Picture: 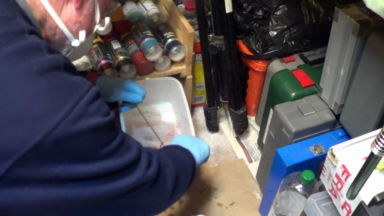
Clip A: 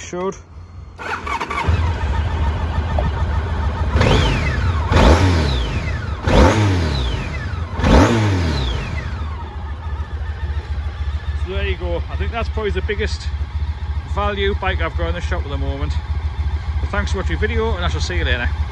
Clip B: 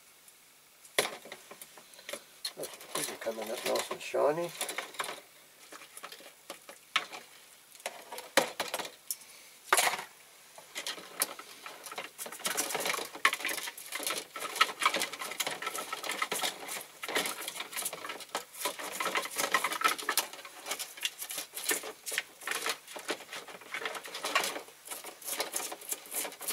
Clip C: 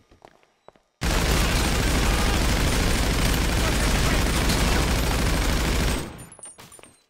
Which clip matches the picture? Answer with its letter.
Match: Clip B